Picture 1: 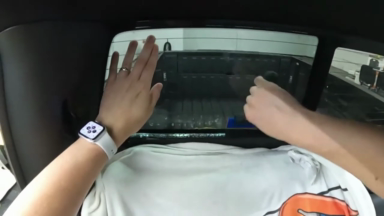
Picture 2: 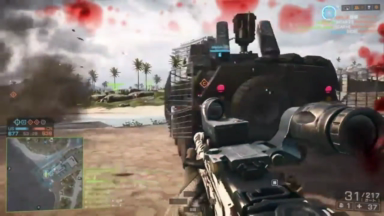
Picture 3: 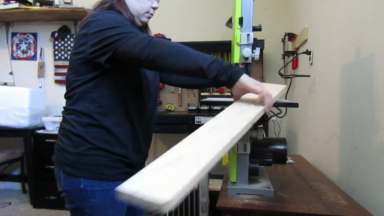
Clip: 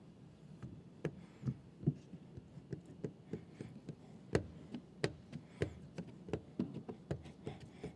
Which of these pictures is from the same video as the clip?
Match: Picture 1